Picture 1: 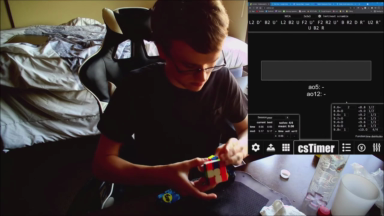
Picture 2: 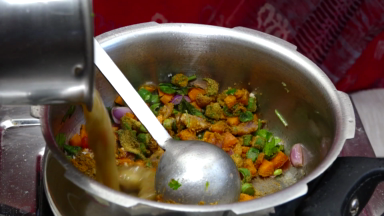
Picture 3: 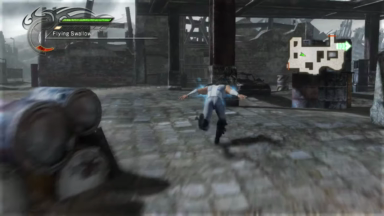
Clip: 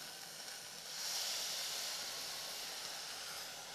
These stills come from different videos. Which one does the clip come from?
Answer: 2